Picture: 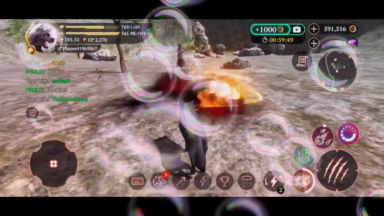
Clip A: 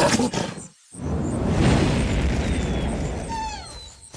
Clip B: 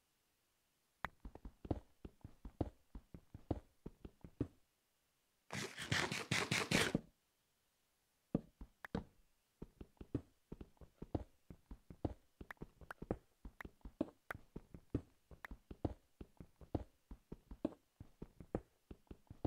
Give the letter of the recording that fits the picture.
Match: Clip A